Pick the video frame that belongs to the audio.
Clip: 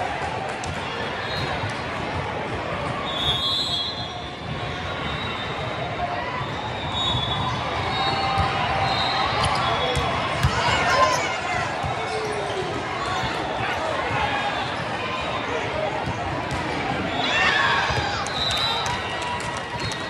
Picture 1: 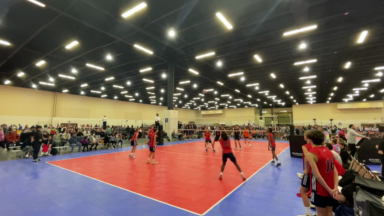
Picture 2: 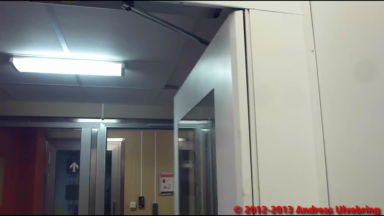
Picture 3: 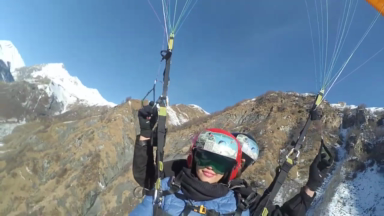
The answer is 1